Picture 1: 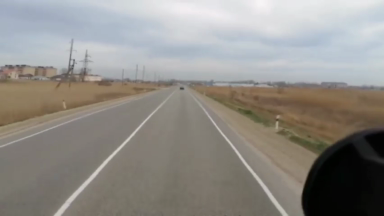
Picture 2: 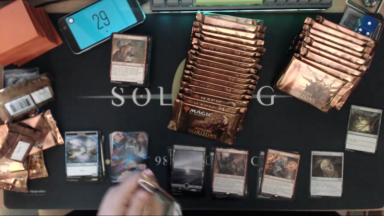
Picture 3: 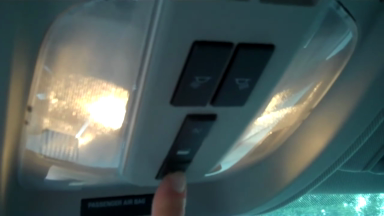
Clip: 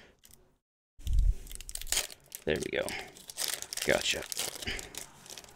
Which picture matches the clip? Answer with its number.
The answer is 2